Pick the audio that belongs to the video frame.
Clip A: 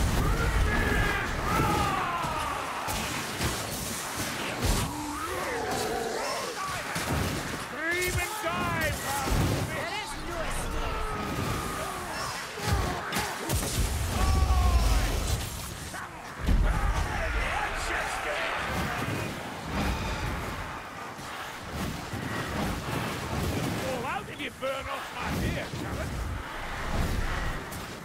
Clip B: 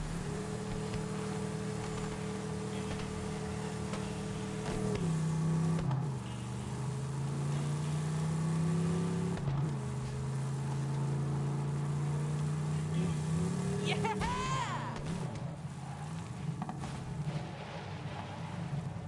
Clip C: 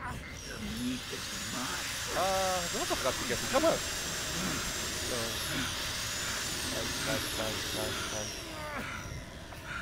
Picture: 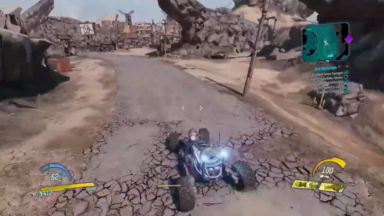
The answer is B